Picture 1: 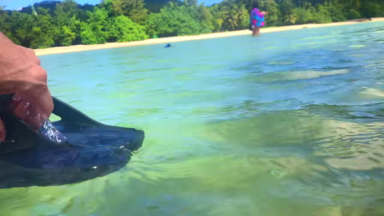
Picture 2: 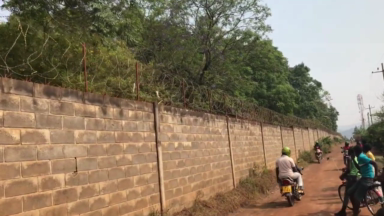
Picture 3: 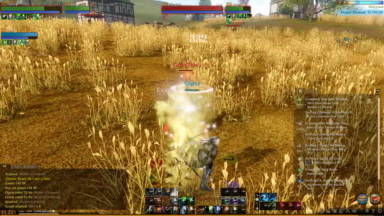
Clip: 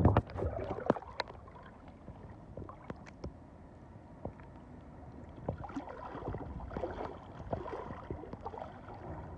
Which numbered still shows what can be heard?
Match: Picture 1